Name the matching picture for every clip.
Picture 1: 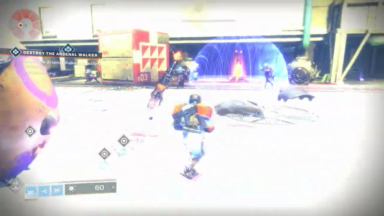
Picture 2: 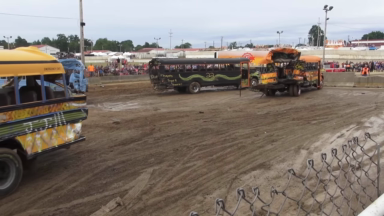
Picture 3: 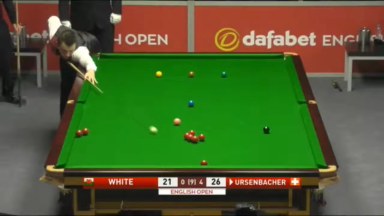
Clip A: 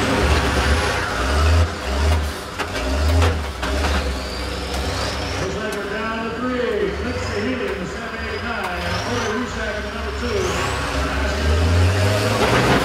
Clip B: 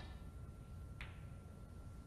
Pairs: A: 2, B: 3